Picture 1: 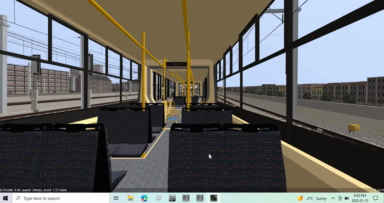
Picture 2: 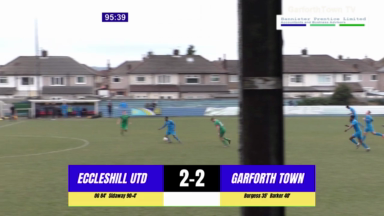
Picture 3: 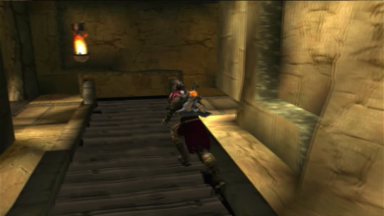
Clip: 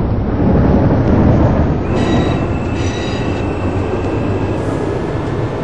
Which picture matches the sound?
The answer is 1